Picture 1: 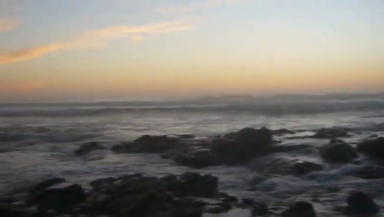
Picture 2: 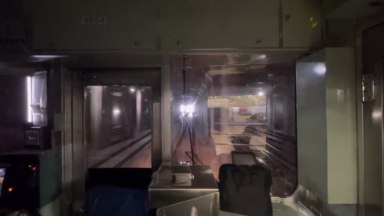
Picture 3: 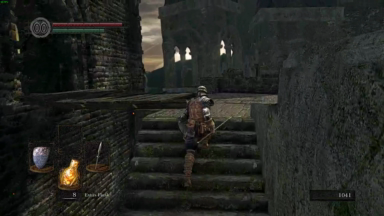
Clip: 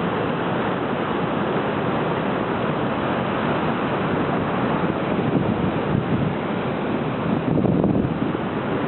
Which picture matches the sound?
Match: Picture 1